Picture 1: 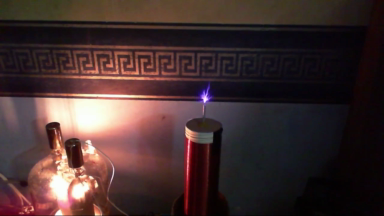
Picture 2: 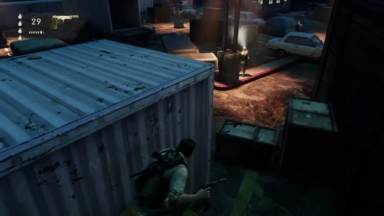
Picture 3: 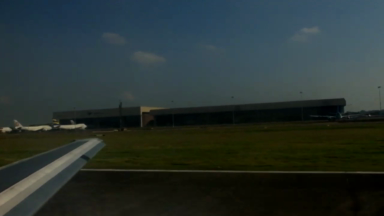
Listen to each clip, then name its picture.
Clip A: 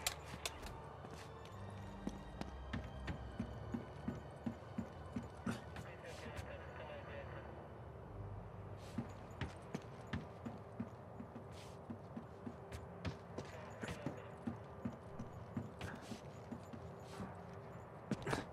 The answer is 2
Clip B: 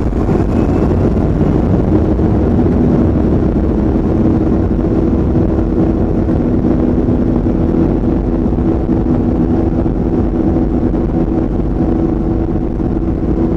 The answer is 3